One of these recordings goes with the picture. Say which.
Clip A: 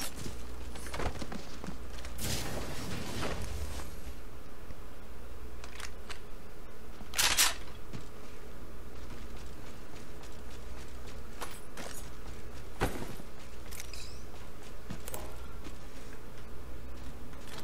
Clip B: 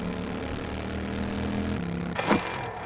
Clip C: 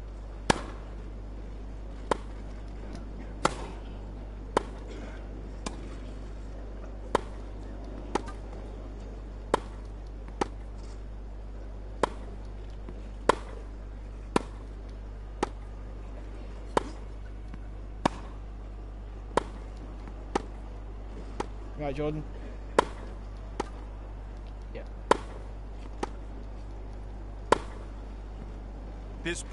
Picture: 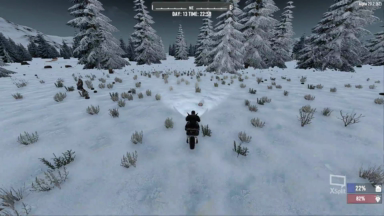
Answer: B